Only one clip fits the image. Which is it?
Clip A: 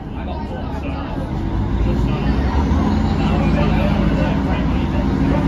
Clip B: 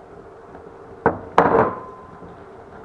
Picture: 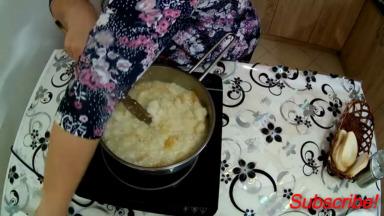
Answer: B